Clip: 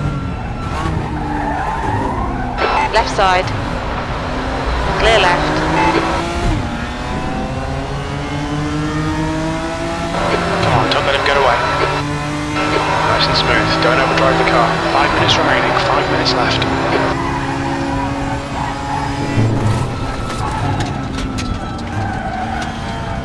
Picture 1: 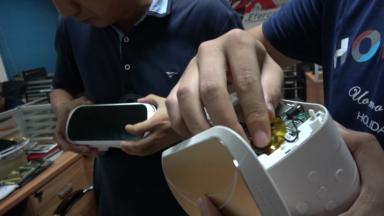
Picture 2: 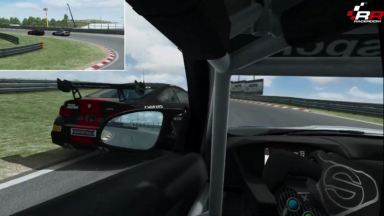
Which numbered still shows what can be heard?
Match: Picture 2